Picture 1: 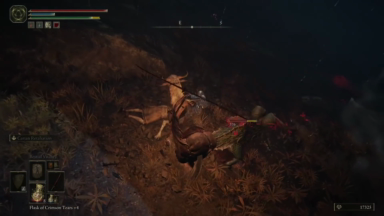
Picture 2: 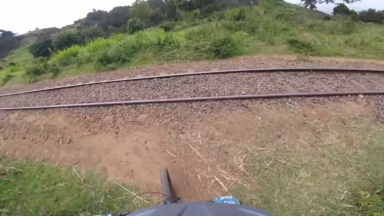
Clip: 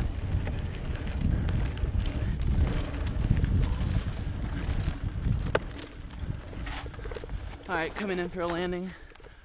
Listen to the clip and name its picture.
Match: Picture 2